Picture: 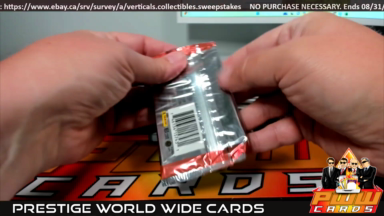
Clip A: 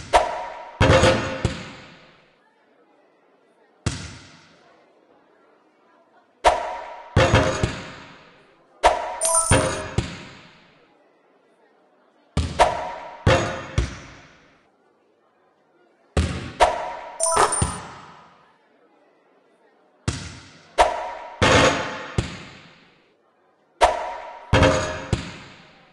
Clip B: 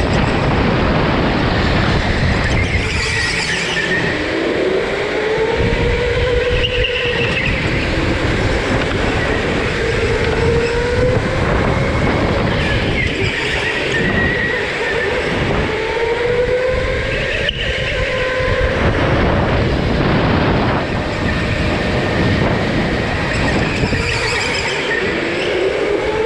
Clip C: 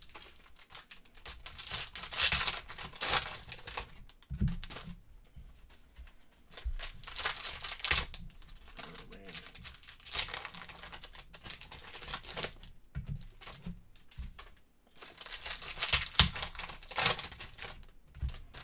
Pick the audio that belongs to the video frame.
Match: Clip C